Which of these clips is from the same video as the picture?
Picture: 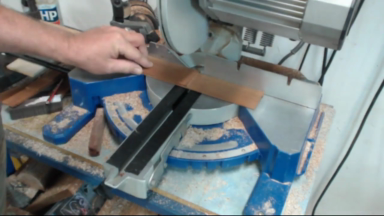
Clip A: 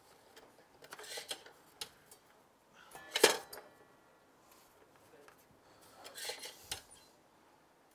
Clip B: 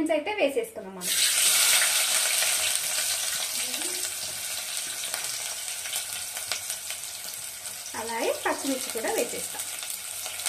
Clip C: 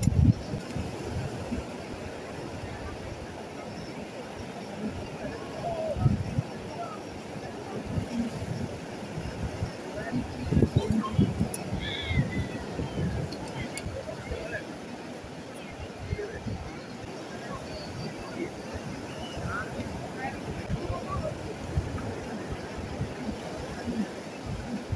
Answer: A